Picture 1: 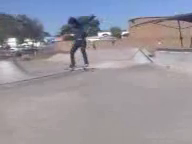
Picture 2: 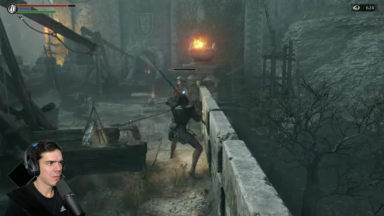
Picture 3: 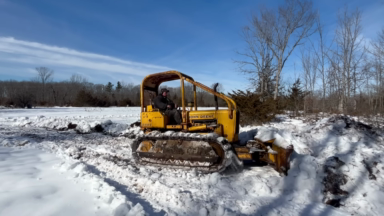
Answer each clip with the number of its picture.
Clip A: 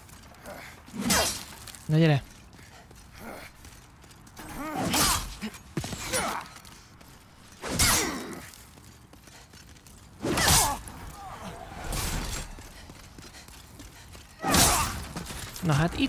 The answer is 2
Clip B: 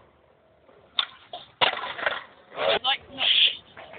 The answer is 1